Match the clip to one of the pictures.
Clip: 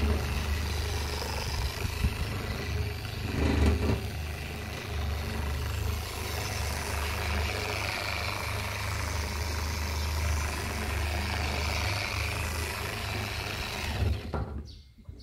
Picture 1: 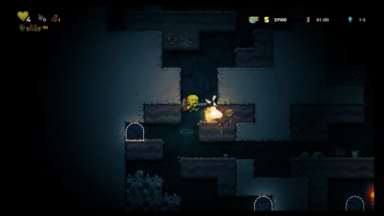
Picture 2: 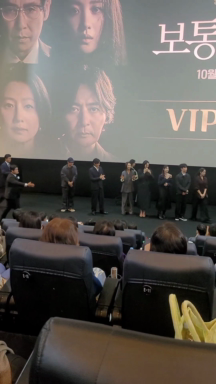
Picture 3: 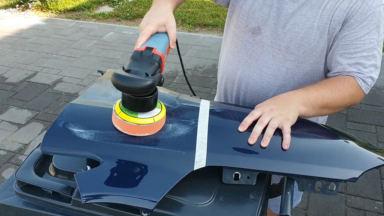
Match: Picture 3